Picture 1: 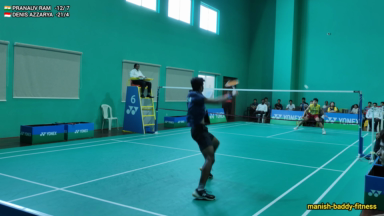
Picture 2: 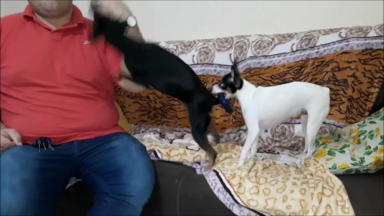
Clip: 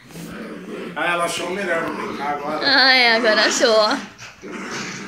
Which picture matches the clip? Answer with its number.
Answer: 2